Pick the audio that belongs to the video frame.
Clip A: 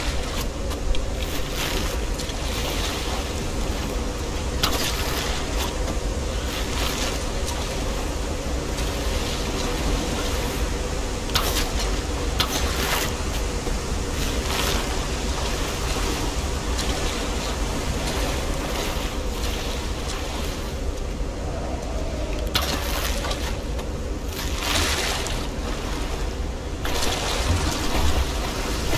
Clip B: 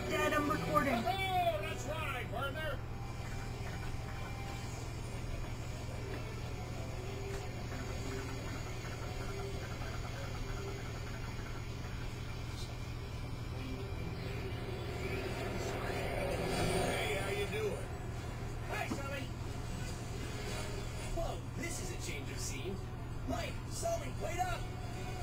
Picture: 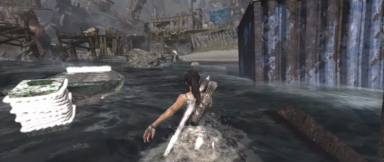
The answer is A